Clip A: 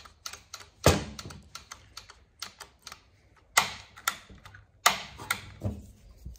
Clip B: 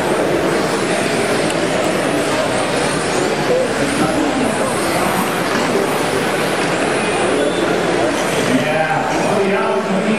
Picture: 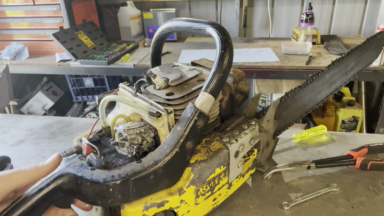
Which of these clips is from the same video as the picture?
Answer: A